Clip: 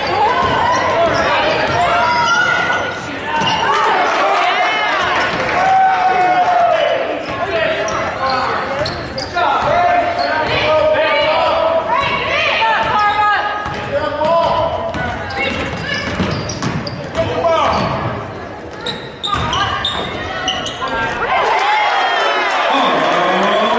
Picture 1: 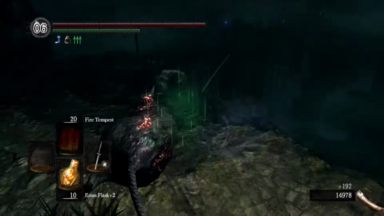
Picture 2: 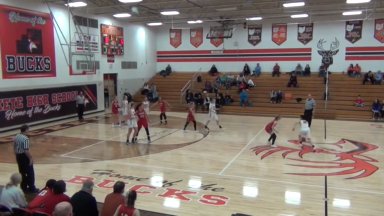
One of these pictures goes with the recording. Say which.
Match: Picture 2